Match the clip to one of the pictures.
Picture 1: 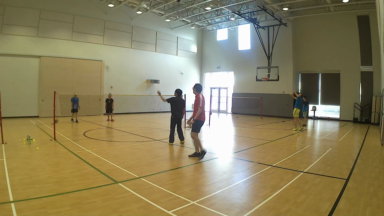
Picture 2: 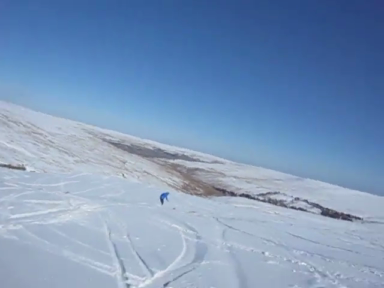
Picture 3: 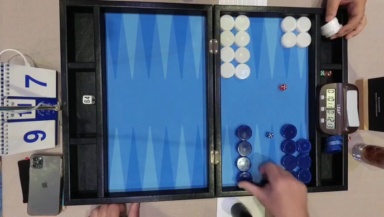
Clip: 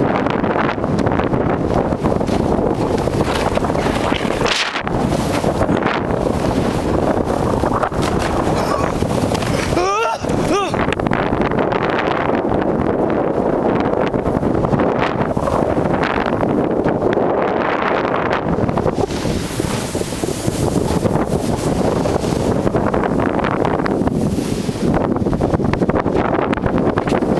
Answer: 2